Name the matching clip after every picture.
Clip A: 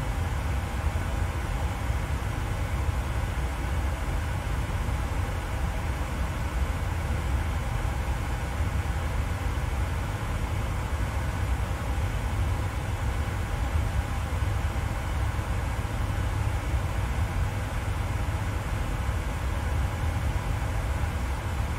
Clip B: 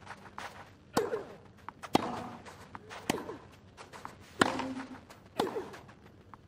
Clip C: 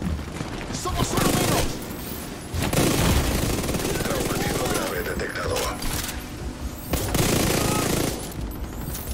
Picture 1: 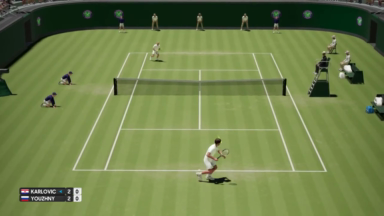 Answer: B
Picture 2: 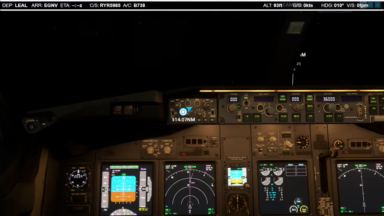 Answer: A